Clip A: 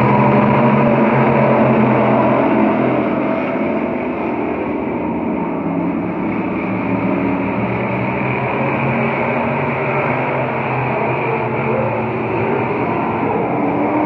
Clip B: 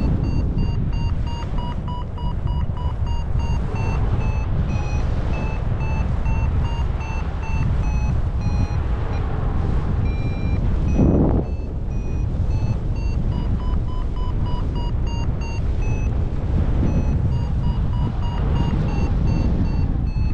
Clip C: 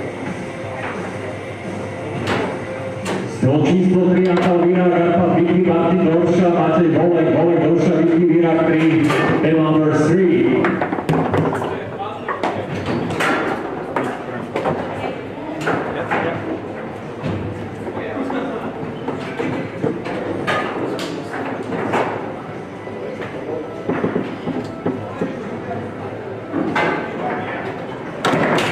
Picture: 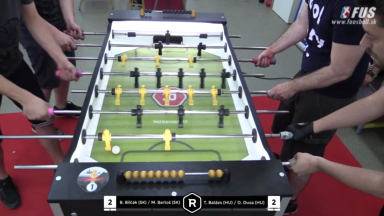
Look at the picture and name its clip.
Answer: C